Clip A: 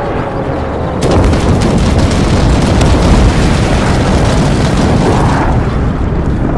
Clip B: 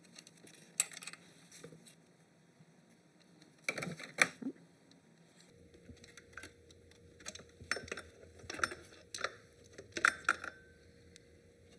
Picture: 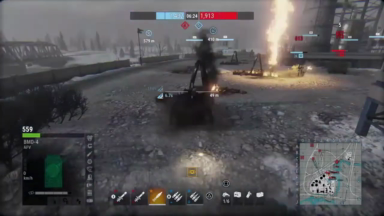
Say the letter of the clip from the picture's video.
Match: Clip A